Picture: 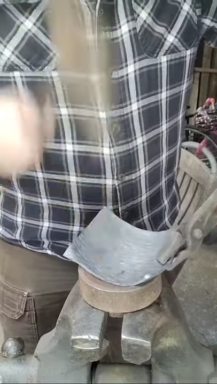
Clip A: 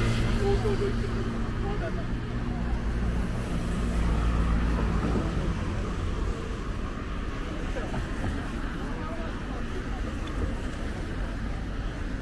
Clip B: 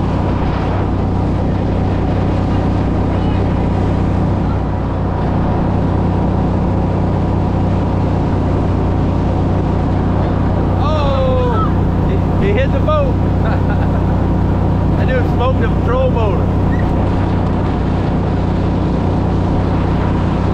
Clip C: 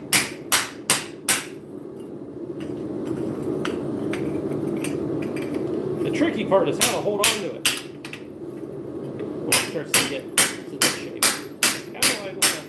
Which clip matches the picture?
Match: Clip C